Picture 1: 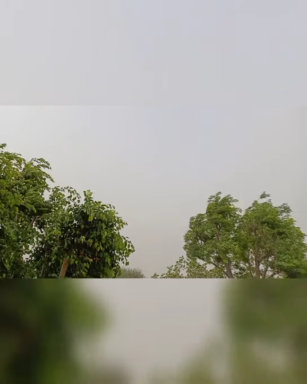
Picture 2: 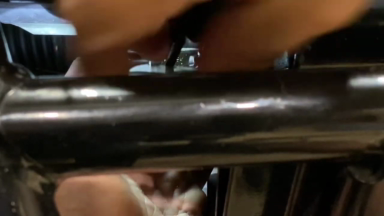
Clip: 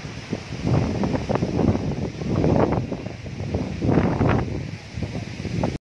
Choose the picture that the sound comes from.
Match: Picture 1